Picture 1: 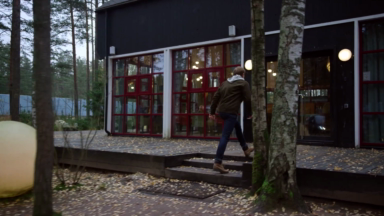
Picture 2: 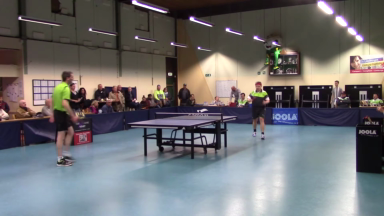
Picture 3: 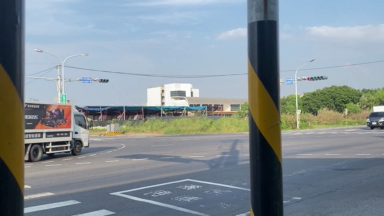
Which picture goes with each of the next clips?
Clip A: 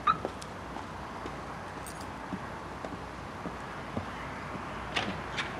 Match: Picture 1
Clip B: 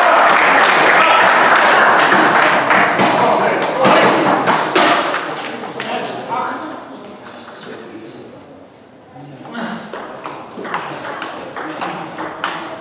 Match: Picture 2